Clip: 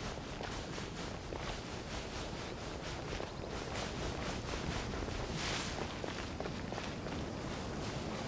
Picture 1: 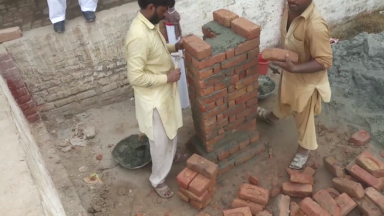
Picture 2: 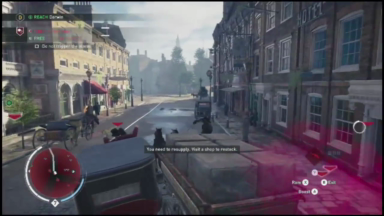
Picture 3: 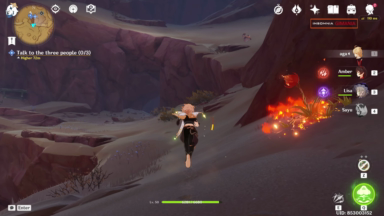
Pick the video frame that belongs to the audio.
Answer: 3